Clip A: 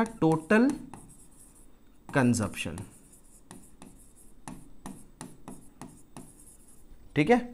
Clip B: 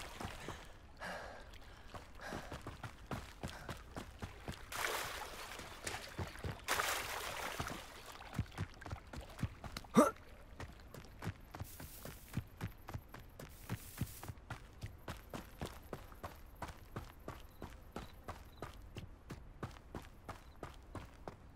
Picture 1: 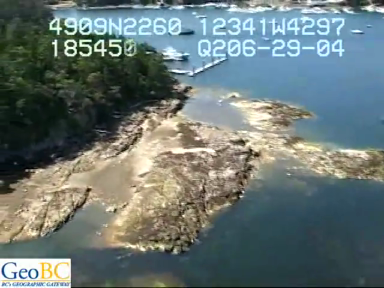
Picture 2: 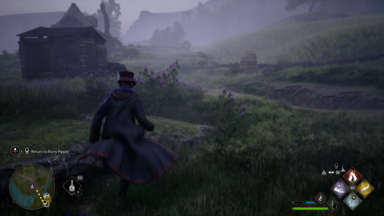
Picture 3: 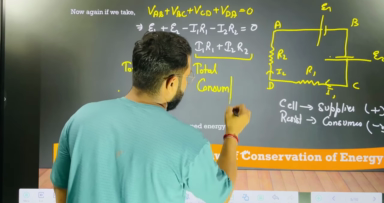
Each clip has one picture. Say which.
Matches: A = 3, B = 2